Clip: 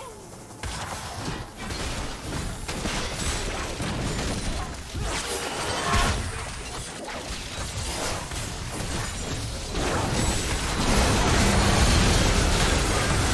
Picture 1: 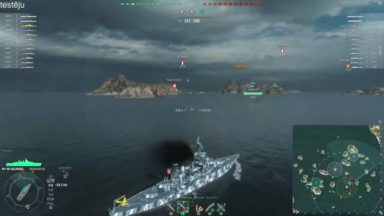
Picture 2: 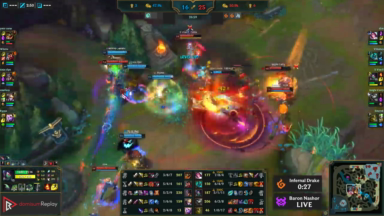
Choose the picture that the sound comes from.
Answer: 2